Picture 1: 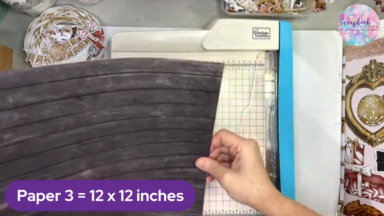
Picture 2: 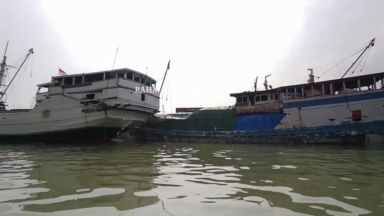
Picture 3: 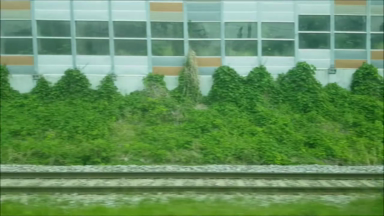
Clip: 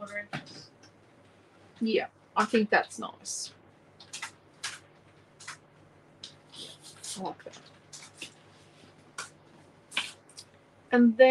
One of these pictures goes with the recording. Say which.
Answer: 1